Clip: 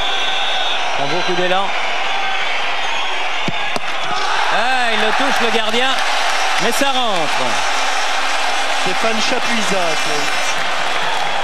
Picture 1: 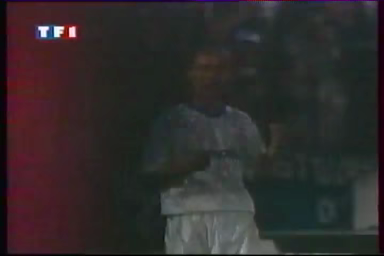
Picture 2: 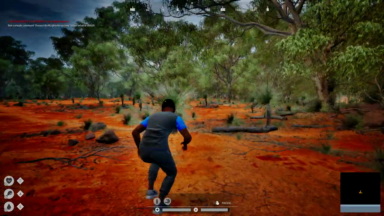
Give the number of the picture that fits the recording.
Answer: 1